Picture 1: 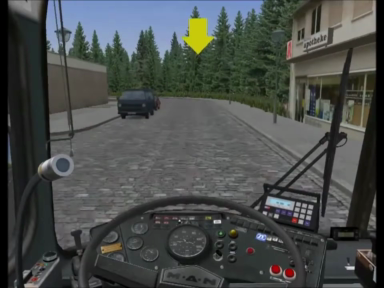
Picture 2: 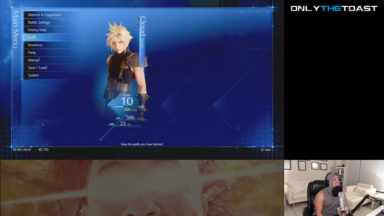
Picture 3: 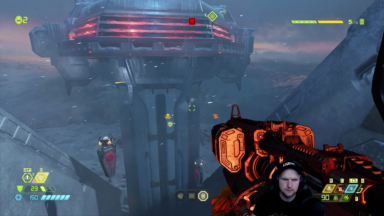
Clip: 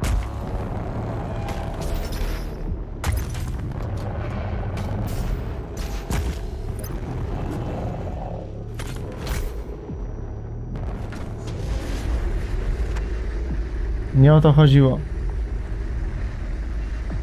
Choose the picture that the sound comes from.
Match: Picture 3